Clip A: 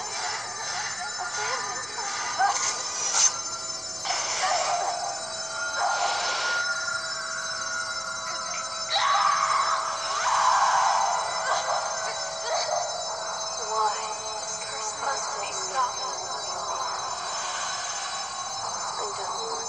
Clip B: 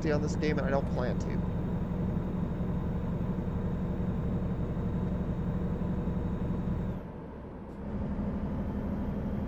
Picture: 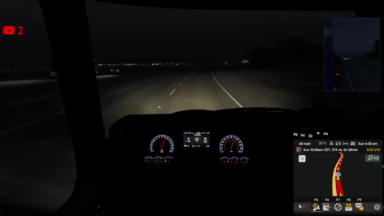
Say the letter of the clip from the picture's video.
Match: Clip B